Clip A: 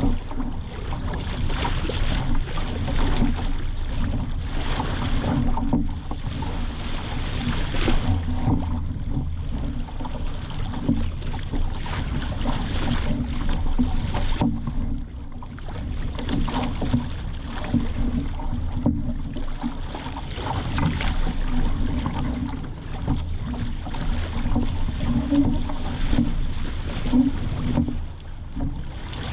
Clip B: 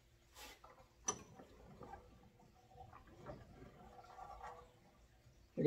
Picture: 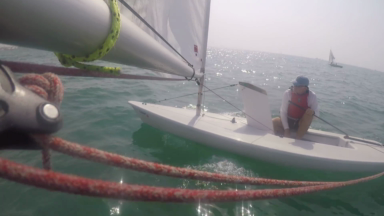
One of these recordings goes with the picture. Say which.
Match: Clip A